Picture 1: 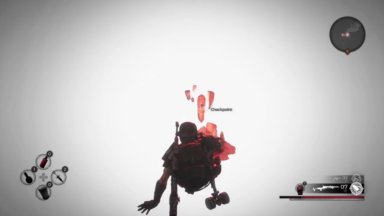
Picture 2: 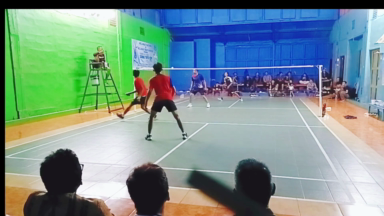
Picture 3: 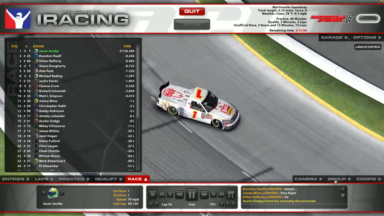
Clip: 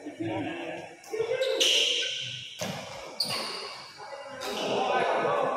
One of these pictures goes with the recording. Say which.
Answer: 2